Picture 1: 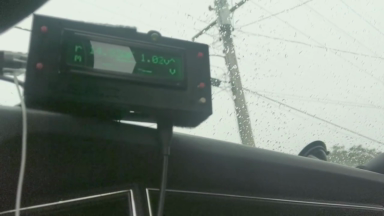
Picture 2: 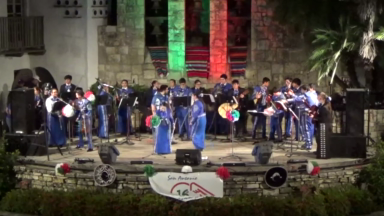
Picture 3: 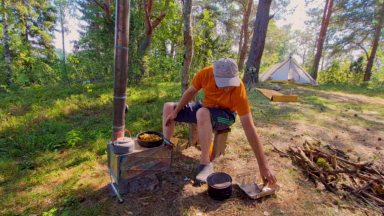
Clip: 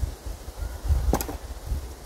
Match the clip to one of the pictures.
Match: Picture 3